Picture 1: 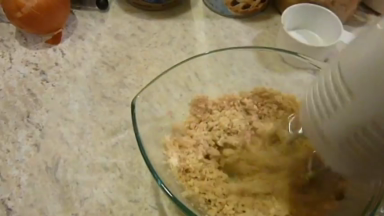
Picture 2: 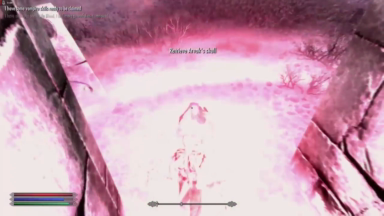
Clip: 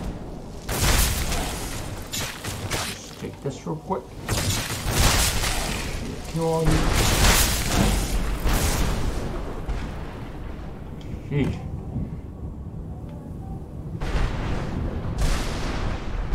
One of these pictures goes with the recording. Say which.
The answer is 2